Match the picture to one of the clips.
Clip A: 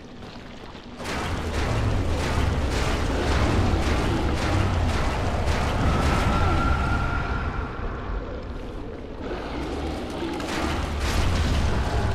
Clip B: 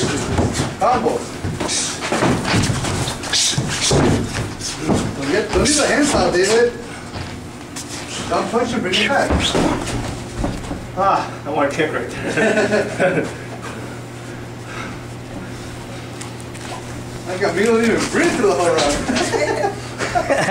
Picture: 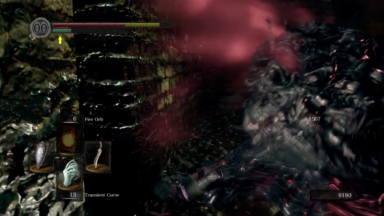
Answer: A